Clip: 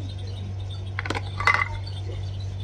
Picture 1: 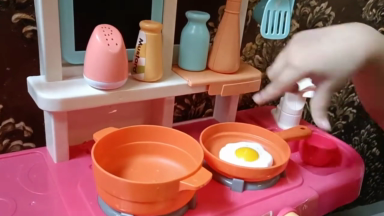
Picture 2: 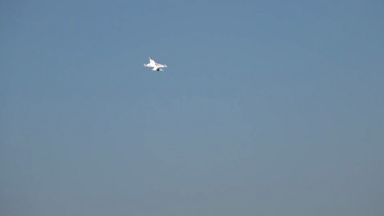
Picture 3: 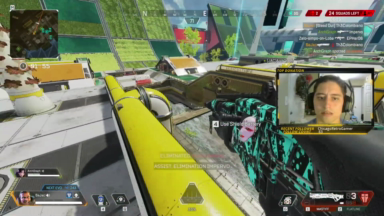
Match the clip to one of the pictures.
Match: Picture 1